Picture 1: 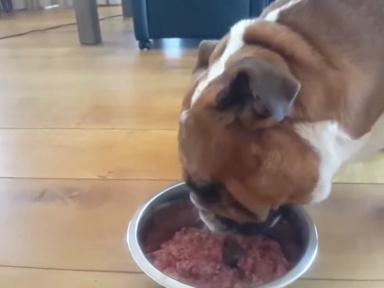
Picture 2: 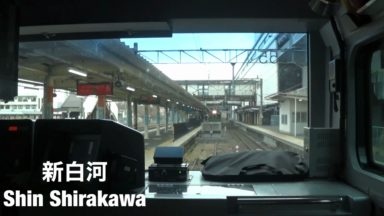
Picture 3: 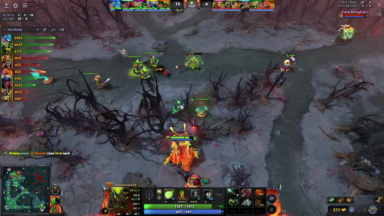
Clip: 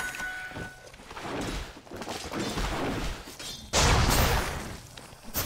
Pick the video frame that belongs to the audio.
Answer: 3